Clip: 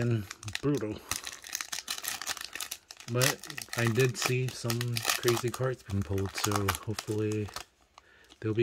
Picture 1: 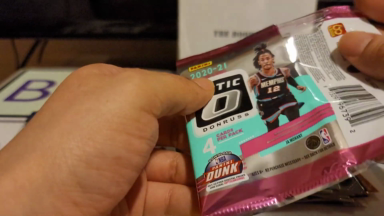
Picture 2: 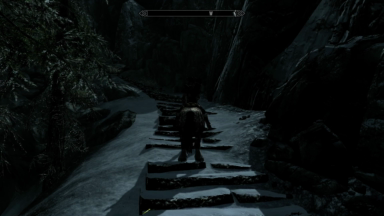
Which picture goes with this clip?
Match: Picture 1